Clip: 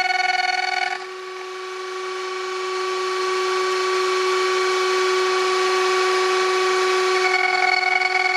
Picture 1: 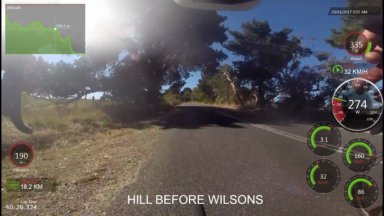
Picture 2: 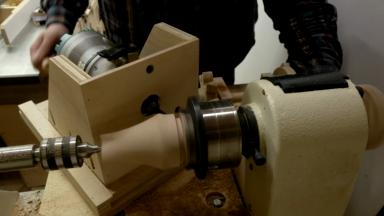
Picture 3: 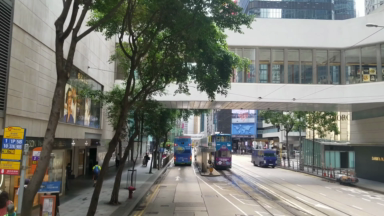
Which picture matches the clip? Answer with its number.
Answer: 2